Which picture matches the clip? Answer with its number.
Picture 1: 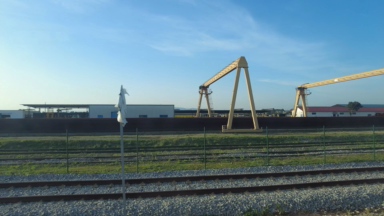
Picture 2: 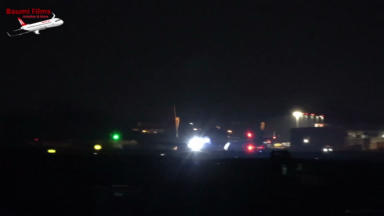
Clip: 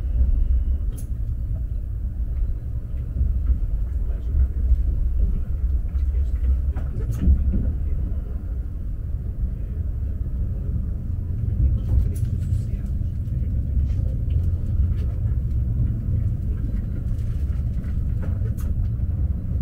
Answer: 1